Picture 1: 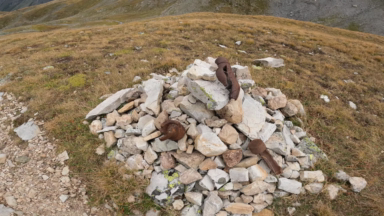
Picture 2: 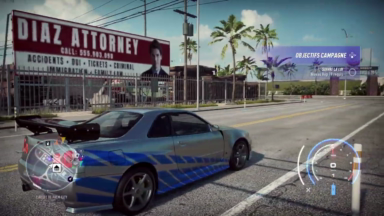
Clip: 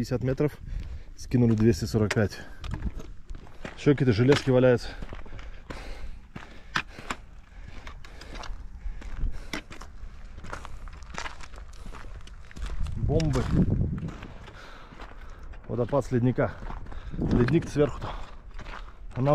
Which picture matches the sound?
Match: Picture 1